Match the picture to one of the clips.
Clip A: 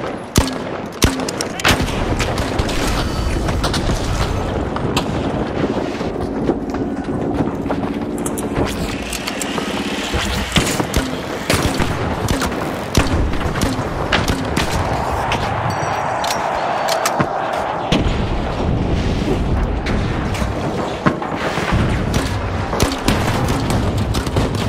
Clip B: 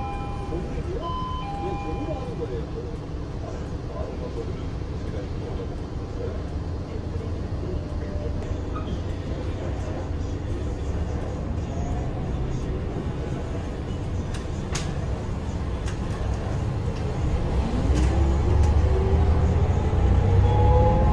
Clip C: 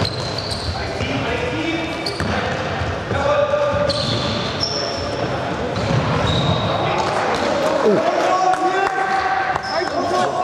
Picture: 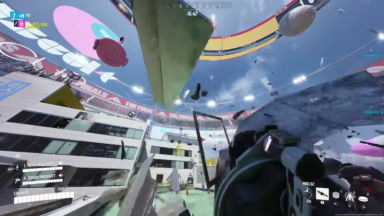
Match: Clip A